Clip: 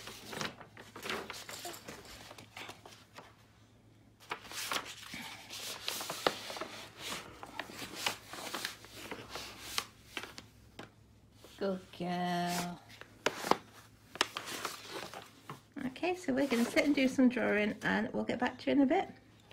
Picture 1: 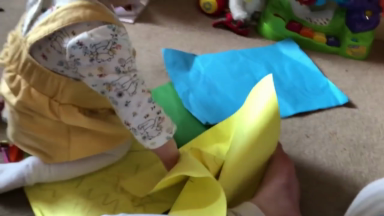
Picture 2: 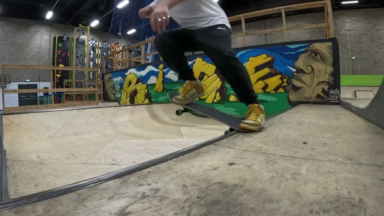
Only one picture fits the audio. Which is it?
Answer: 1